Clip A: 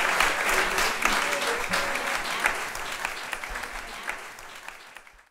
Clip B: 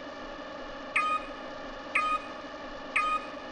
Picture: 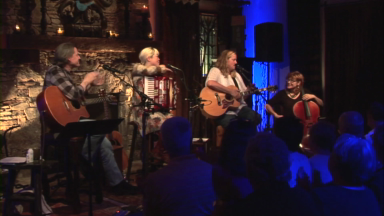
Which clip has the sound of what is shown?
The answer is A